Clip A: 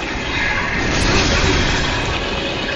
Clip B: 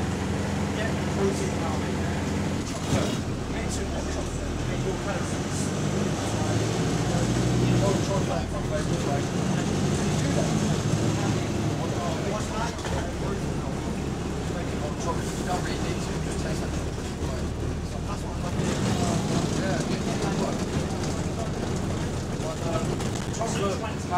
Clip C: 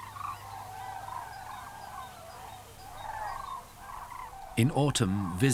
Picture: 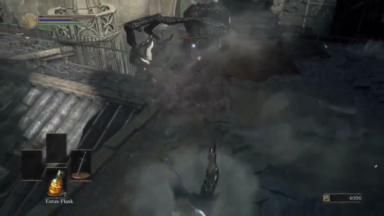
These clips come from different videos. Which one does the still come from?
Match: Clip A